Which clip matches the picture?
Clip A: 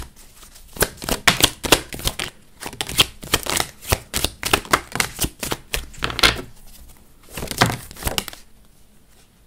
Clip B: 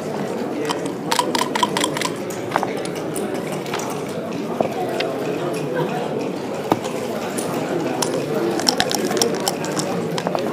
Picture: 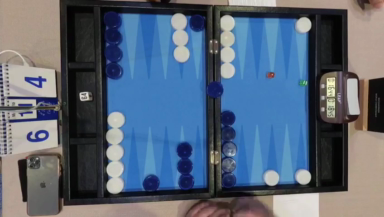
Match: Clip B